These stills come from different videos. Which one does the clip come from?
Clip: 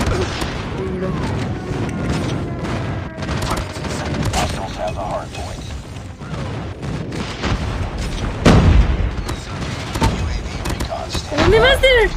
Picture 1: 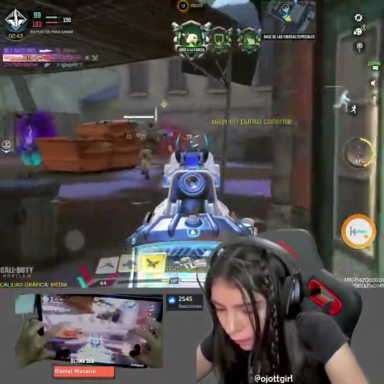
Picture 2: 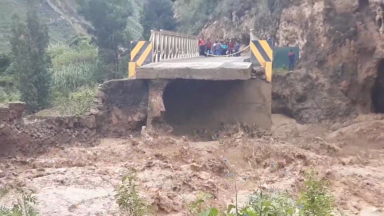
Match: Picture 1